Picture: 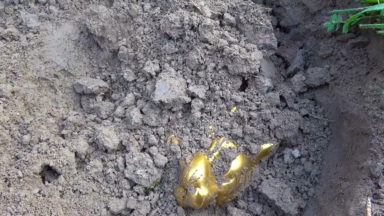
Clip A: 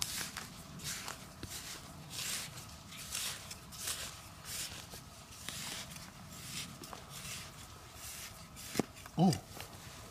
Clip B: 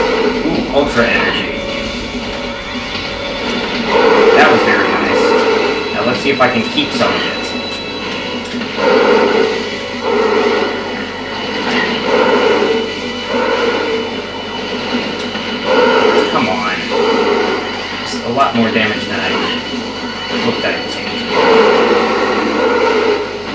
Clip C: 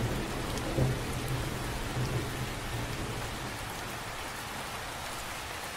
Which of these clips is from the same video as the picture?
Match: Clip A